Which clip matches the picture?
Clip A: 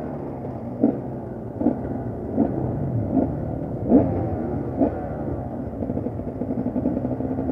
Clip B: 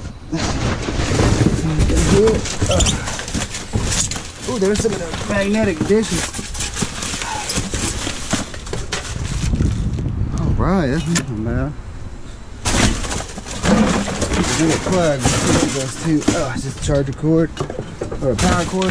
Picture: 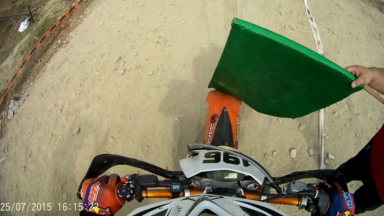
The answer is A